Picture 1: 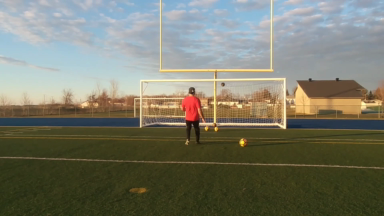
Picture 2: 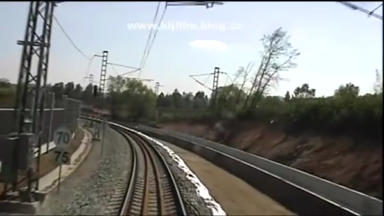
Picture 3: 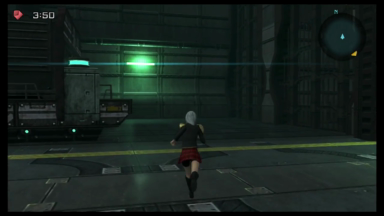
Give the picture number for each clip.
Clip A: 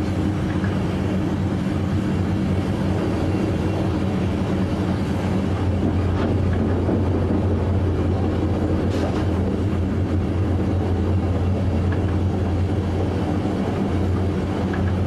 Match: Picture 2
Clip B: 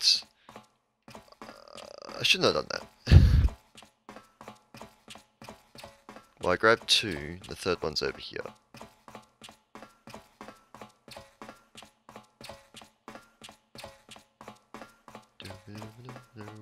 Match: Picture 3